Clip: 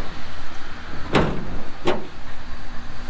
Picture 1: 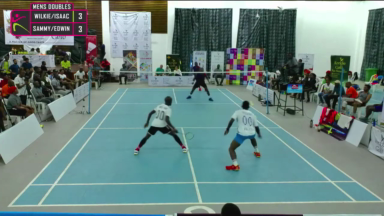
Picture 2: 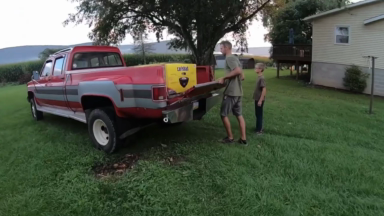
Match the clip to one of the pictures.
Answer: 2